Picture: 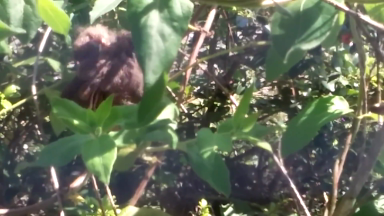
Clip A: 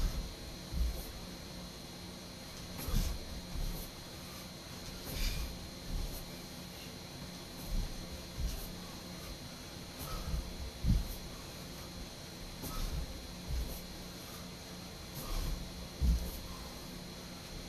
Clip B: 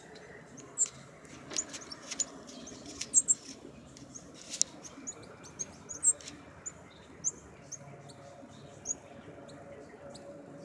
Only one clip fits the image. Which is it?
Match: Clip B